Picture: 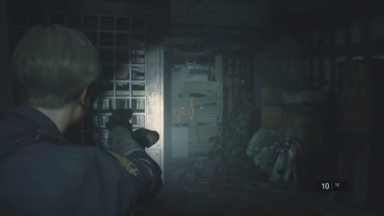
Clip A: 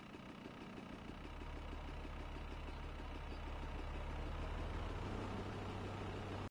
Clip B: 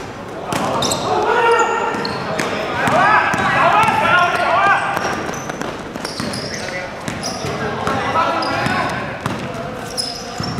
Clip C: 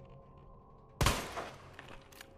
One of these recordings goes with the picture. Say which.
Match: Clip C